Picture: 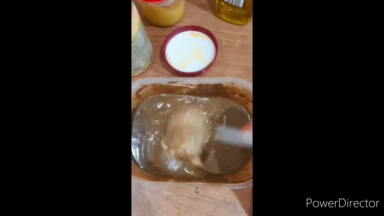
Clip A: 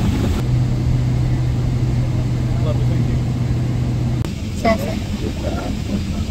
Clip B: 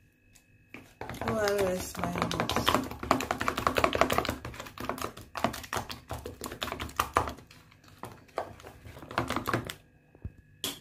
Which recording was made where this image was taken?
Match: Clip B